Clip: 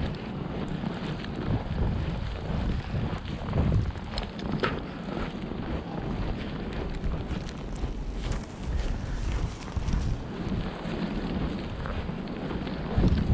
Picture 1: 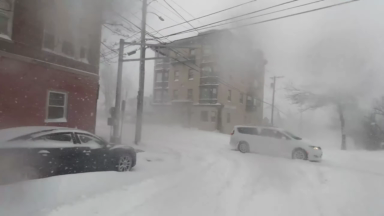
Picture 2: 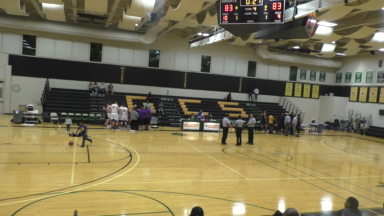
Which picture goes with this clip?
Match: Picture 1